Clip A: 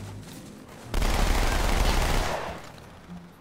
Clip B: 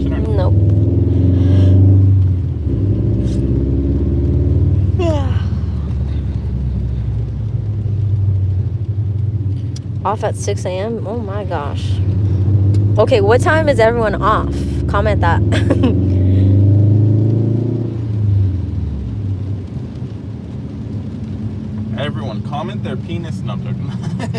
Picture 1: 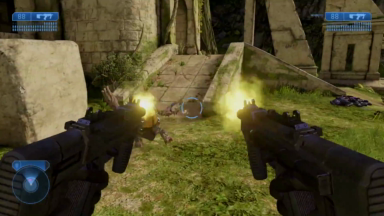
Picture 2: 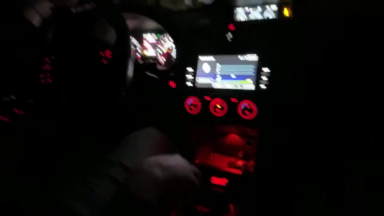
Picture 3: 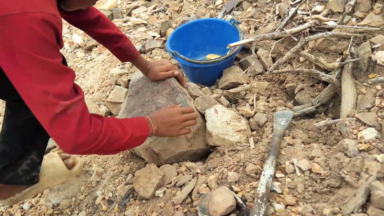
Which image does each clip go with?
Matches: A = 1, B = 2